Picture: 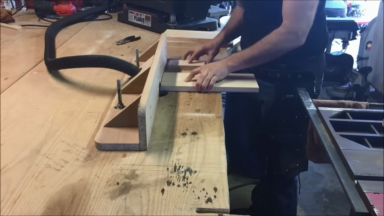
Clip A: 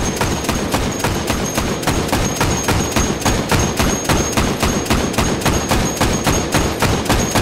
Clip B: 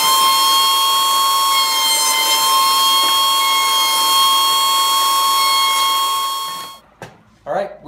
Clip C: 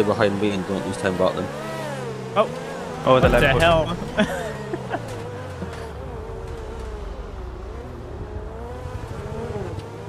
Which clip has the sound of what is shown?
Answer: B